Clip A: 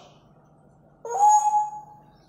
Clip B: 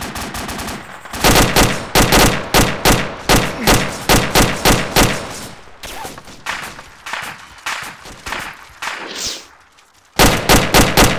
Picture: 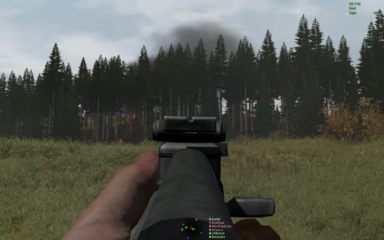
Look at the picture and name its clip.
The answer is B